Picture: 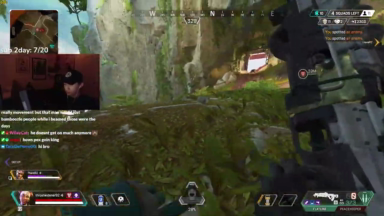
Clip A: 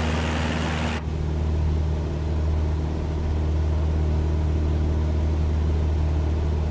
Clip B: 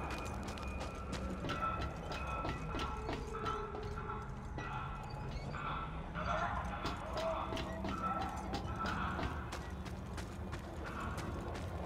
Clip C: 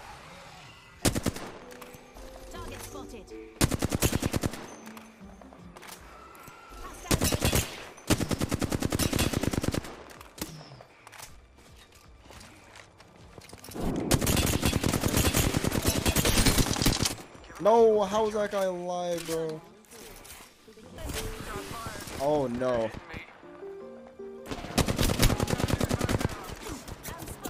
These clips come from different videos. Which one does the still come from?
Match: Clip C